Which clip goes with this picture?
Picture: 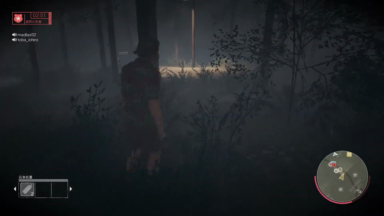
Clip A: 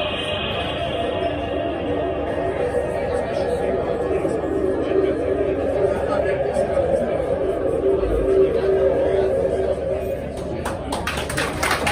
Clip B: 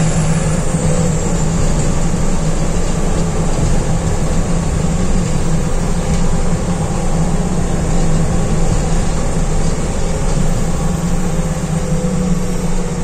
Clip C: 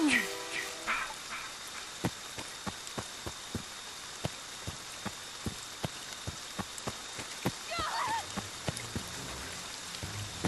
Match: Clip C